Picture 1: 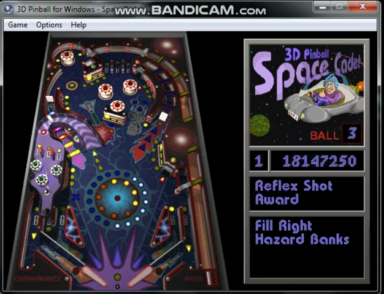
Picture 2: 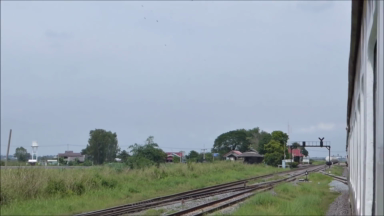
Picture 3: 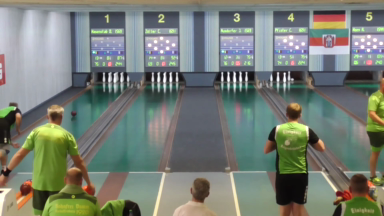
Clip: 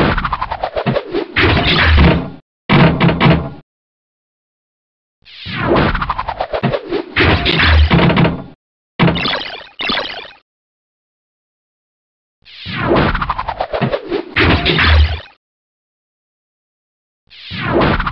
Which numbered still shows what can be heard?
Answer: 1